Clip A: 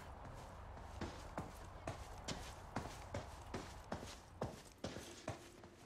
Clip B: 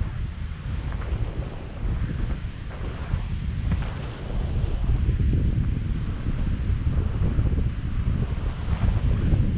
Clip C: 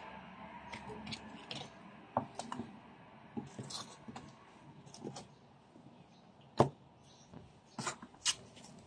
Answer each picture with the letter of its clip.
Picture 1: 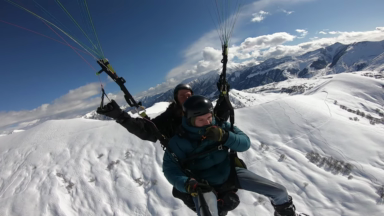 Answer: B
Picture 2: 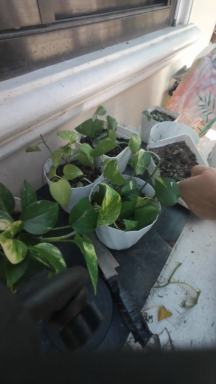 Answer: C